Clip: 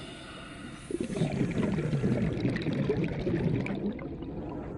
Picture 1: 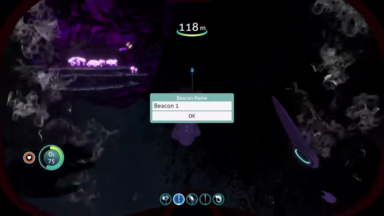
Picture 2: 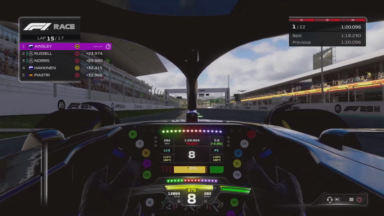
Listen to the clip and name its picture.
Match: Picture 1